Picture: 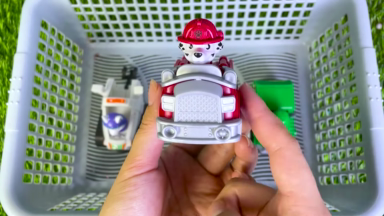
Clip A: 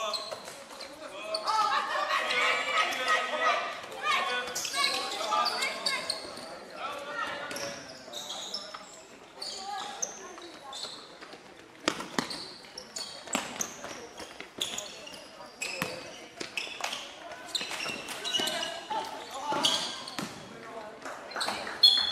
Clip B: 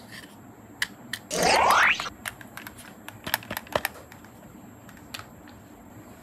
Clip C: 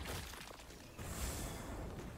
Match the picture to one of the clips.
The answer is B